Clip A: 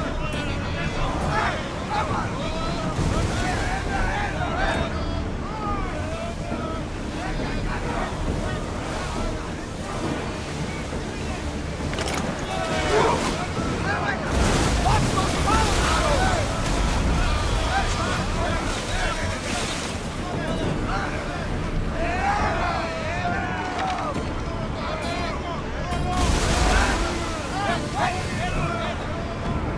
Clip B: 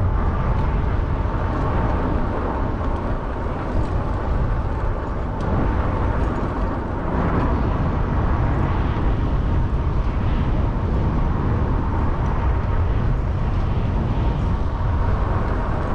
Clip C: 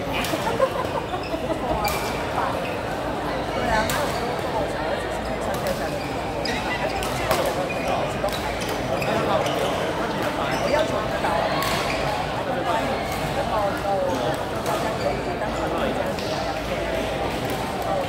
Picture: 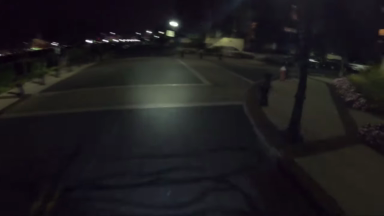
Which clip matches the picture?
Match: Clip B